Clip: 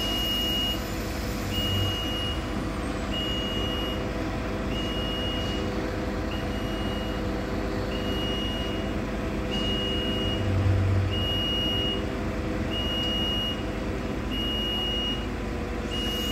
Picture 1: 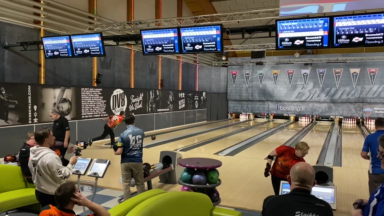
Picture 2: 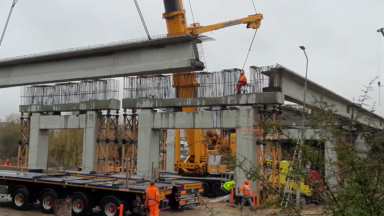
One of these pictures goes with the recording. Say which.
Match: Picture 2